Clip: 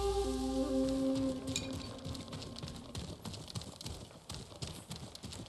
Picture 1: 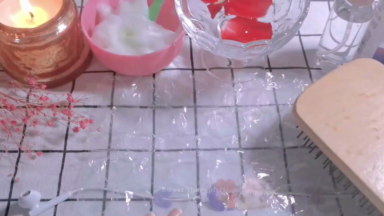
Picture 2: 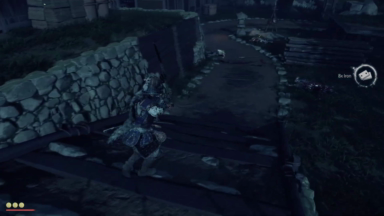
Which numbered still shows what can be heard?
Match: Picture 2